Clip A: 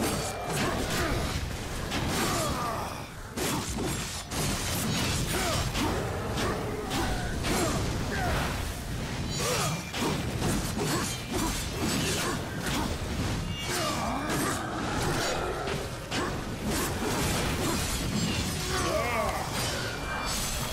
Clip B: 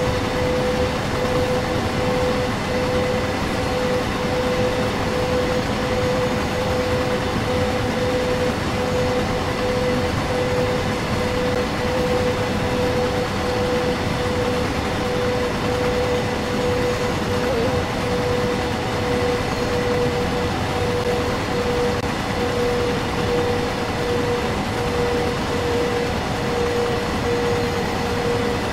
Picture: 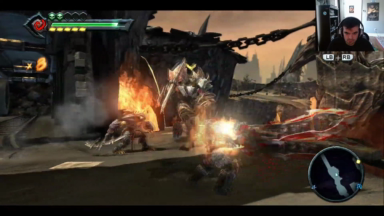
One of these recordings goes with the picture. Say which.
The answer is A